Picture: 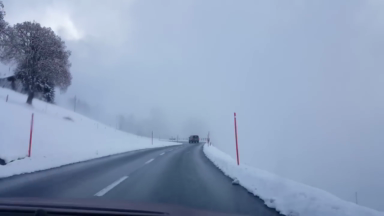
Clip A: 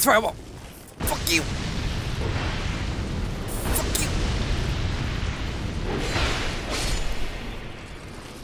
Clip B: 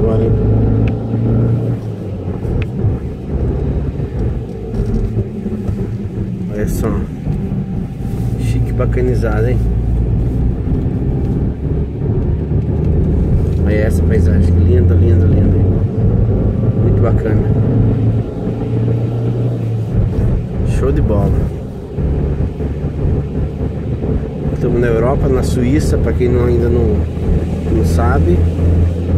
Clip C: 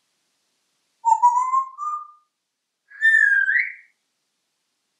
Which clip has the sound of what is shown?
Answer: B